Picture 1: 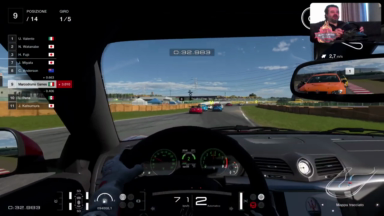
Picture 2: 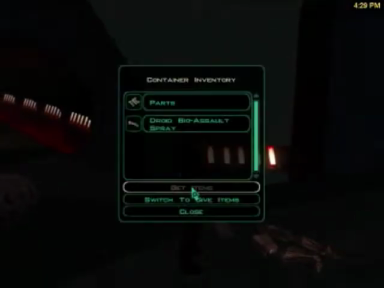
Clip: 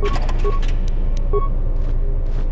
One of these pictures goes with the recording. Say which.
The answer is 2